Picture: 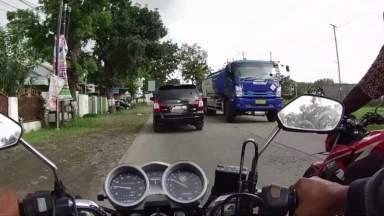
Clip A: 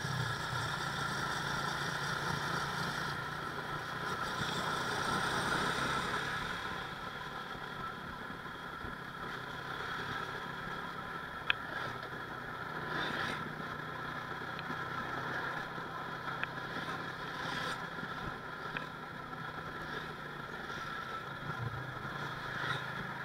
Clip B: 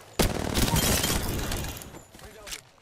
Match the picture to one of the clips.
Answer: A